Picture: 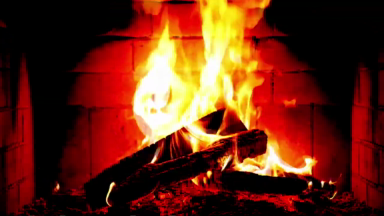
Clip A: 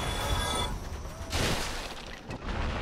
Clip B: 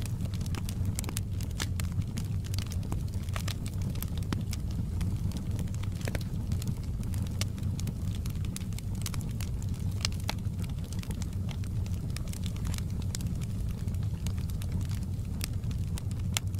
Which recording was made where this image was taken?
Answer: B